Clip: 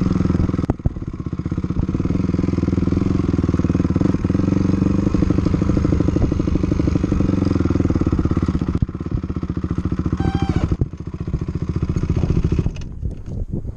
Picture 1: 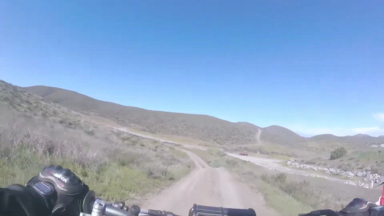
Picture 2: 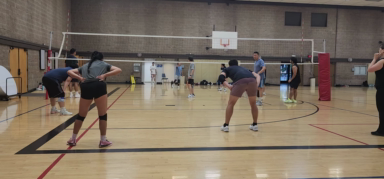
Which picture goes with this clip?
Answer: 1